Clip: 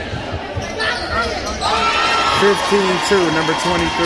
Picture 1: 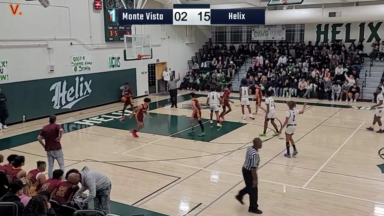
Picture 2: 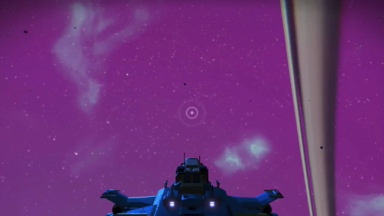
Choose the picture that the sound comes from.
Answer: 1